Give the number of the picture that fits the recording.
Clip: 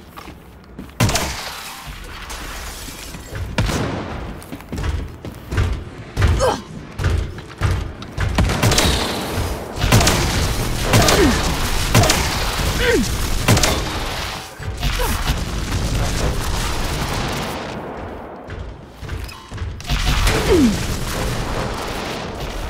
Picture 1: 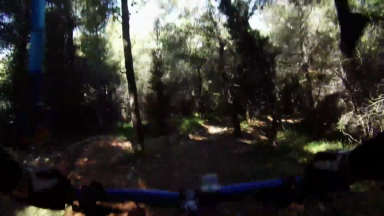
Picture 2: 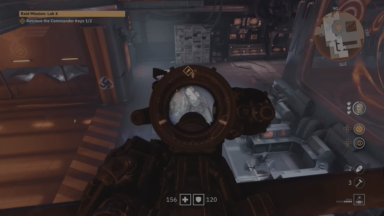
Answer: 2